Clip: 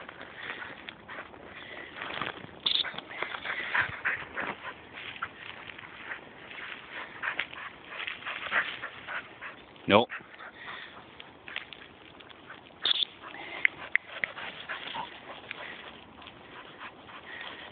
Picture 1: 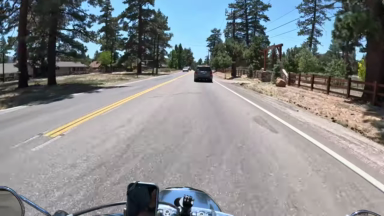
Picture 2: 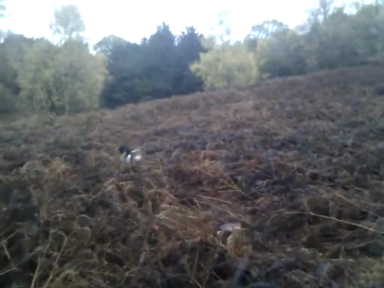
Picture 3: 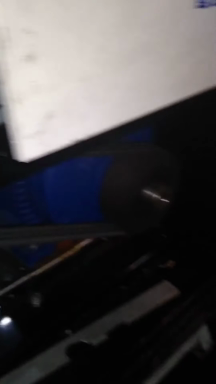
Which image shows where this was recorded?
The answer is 2